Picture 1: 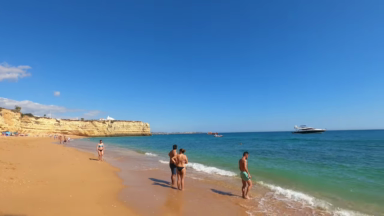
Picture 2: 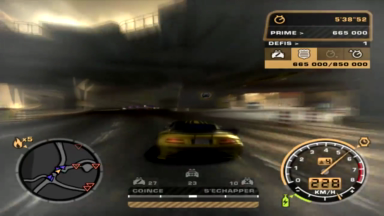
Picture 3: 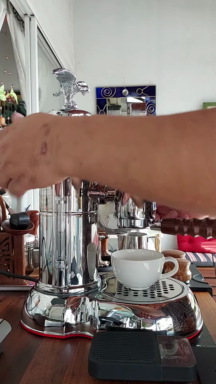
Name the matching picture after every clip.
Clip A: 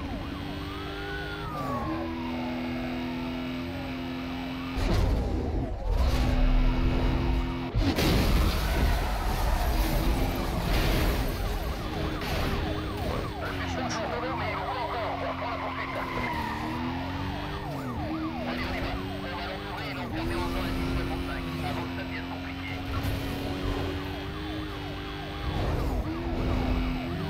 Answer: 2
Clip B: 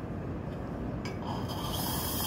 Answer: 3